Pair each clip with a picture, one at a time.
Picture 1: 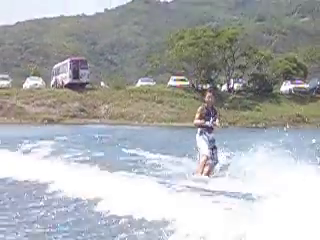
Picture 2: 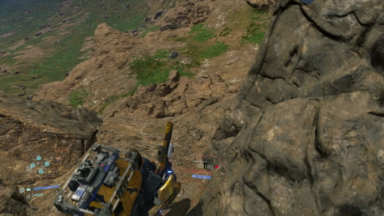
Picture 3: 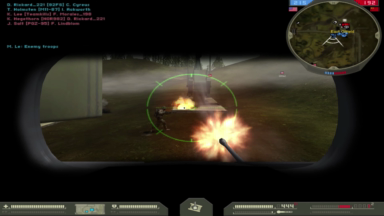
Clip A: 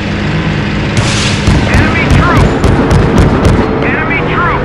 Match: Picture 3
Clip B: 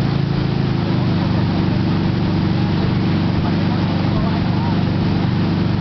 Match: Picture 1